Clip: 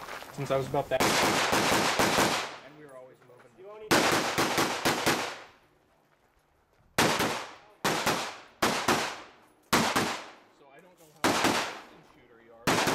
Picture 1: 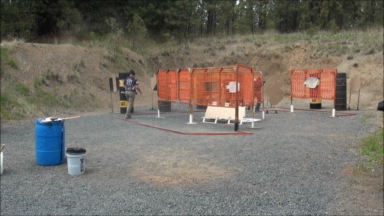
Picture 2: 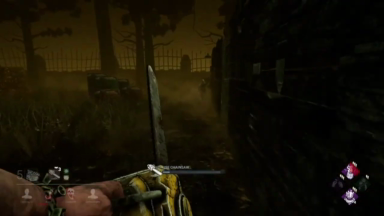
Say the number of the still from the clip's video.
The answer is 1